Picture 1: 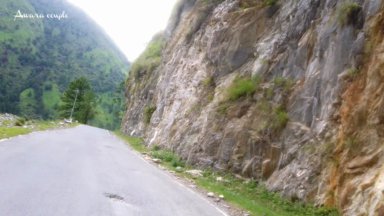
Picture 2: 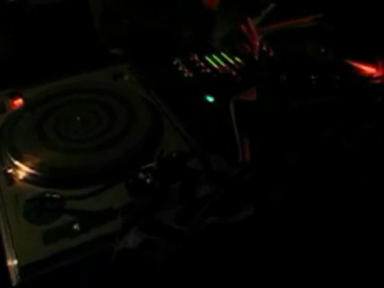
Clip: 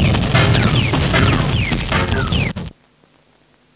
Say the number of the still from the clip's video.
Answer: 2